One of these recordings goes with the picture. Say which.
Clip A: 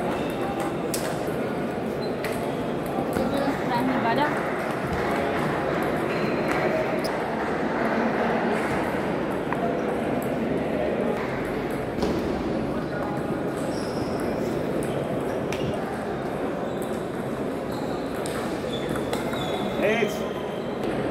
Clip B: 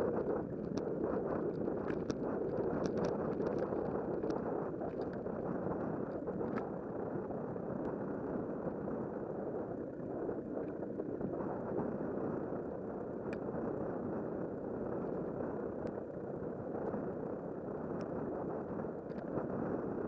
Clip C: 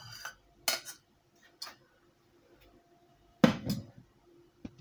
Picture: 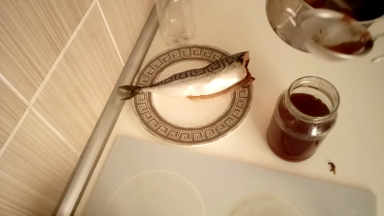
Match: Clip C